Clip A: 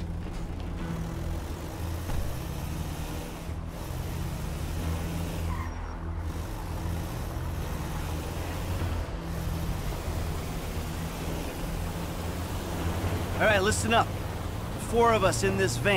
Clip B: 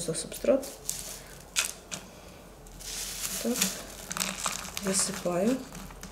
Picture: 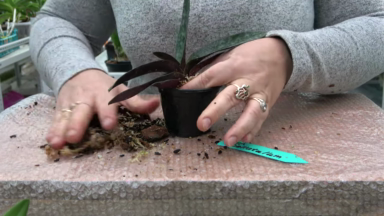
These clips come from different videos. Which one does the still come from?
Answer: B